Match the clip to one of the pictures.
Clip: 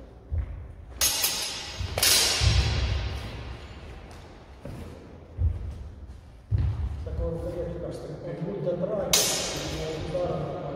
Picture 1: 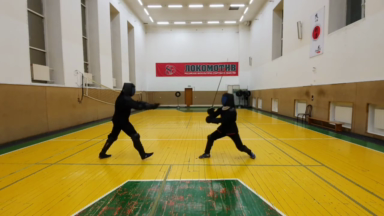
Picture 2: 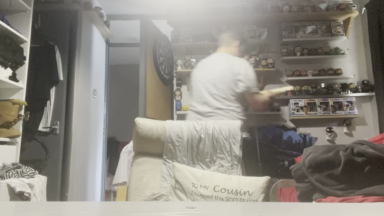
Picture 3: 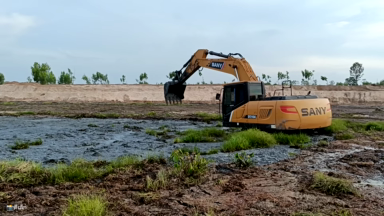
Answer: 1